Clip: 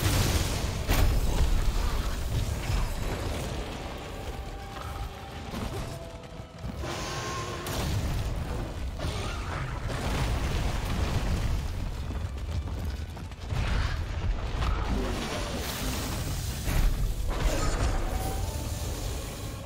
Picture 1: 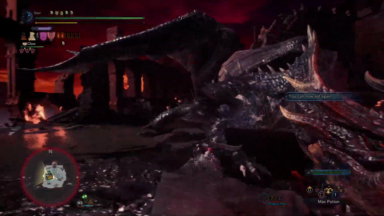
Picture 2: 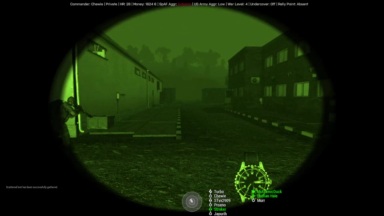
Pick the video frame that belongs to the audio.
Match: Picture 1